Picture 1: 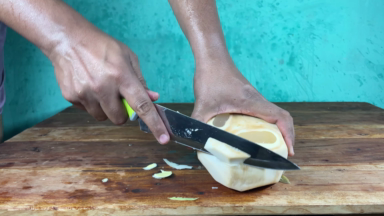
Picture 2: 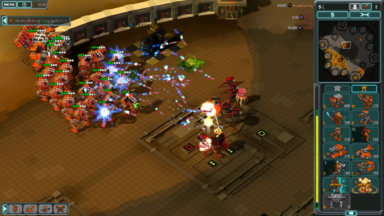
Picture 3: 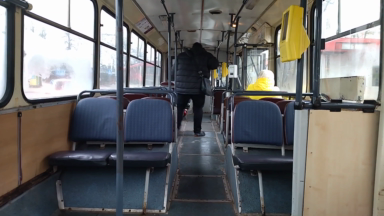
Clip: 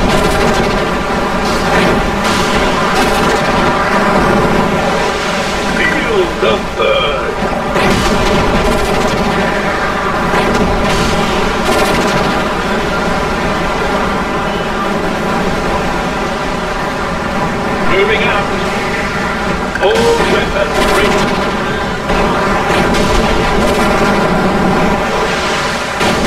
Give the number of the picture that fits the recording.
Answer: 2